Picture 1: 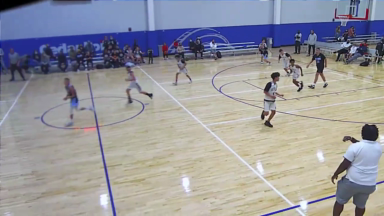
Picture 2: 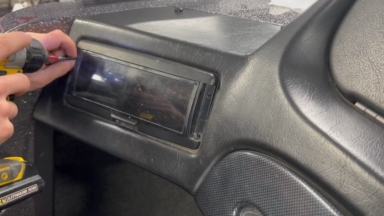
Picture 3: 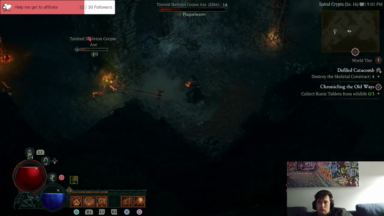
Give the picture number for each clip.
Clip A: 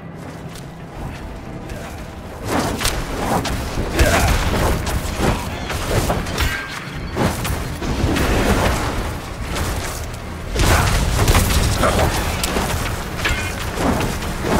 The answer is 3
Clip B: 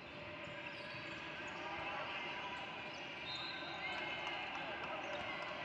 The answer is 1